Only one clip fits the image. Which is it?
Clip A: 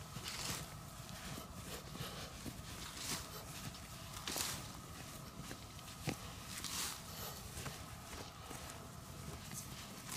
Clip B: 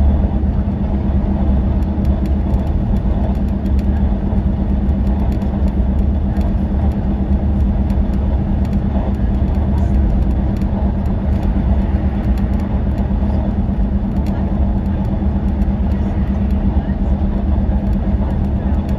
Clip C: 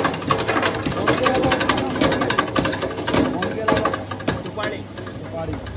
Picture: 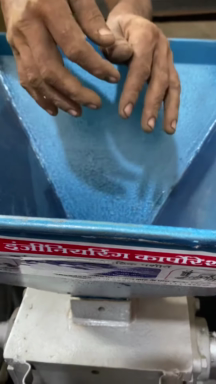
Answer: C